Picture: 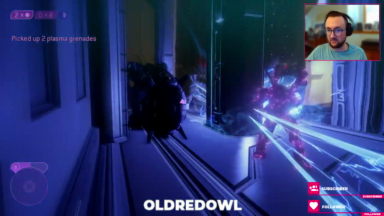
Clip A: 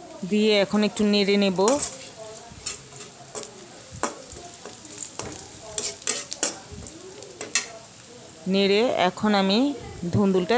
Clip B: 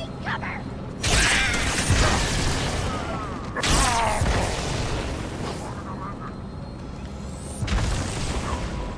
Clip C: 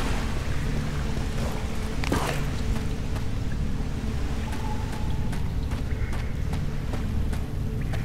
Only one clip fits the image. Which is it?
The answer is B